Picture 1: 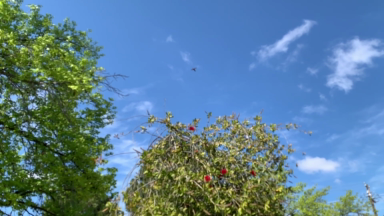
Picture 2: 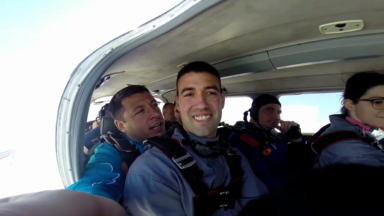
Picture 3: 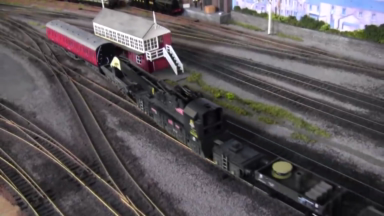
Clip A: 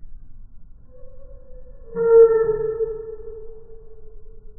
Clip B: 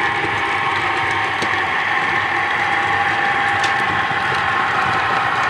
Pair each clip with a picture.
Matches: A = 1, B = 3